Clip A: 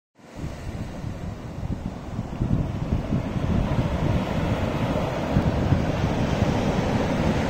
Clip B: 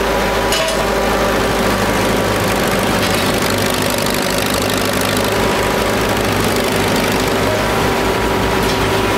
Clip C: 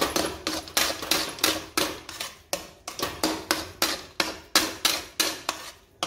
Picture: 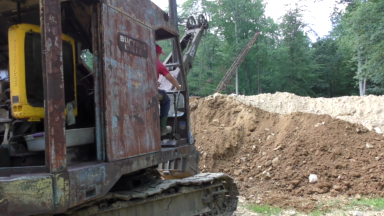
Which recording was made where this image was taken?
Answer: B